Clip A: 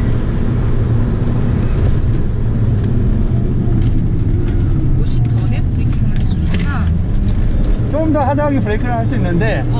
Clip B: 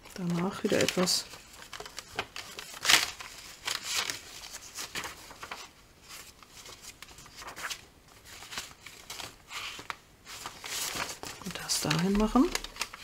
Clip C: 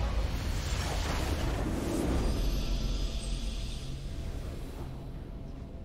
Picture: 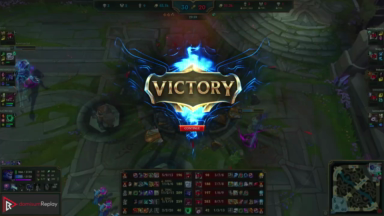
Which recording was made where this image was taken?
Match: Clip C